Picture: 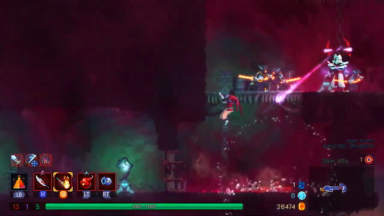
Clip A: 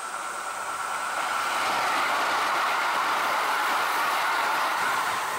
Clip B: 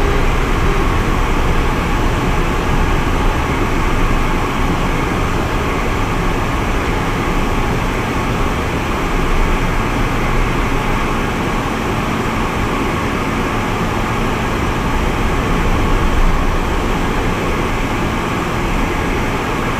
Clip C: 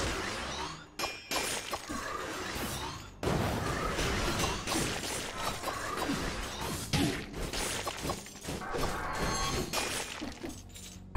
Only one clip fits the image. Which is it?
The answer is C